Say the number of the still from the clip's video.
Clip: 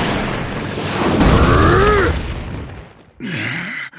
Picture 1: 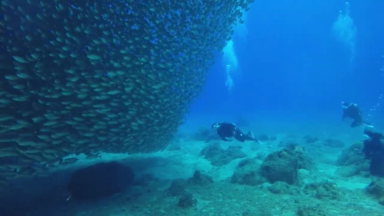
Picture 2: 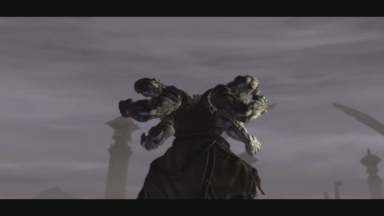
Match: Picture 2